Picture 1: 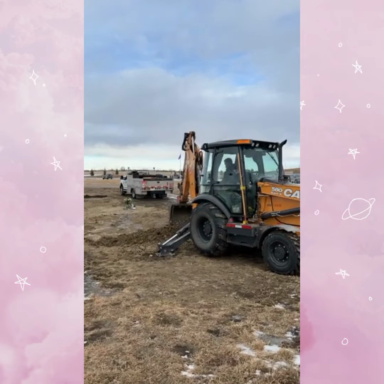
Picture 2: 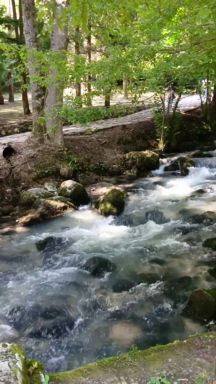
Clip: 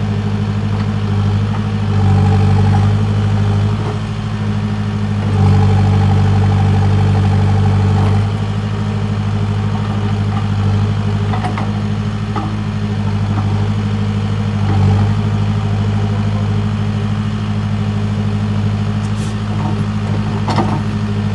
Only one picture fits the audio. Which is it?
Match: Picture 1